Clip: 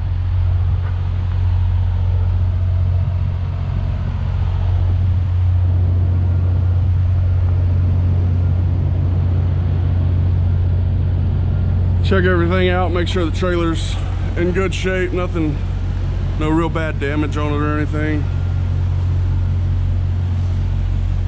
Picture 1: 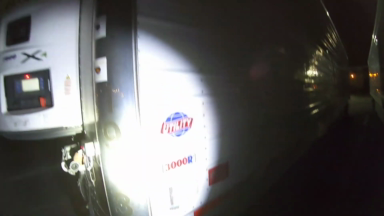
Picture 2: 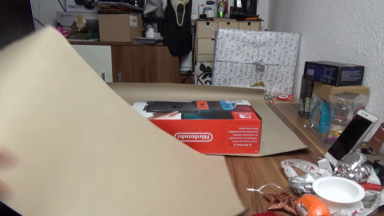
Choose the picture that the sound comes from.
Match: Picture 1